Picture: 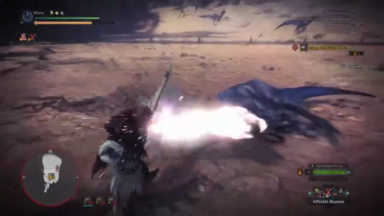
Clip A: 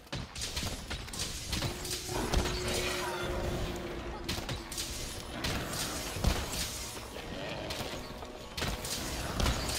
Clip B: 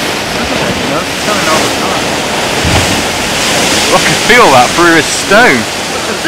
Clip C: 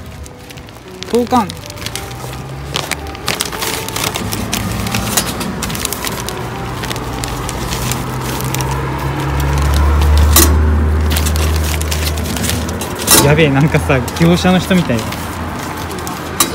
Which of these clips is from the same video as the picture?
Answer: A